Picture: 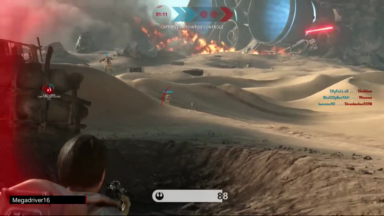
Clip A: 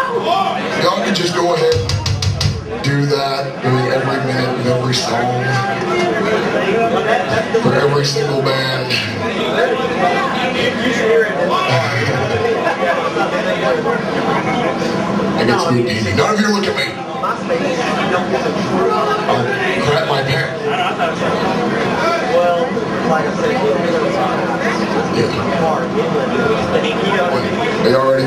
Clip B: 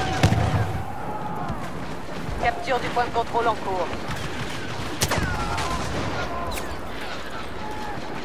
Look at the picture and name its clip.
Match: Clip B